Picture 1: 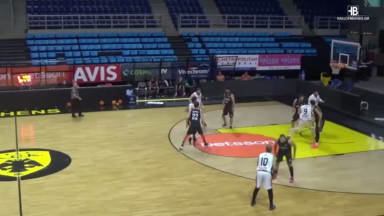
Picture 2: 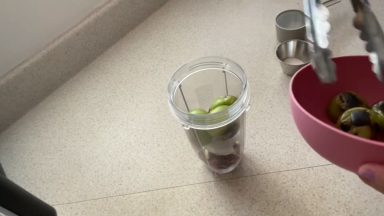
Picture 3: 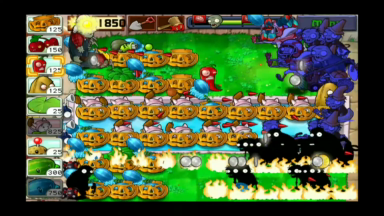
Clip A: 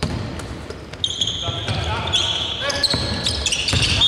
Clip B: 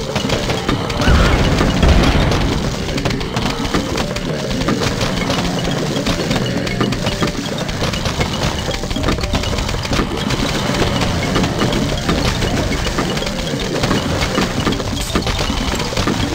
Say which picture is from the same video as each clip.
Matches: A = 1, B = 3